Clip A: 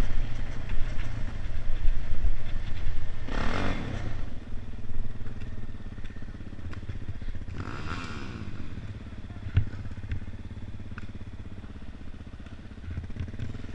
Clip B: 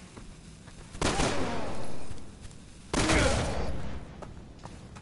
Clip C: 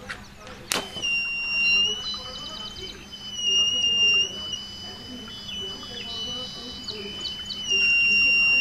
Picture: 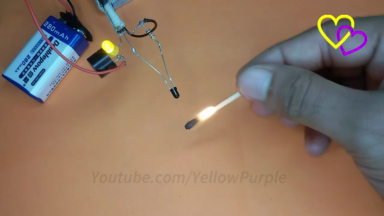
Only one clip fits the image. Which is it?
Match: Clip C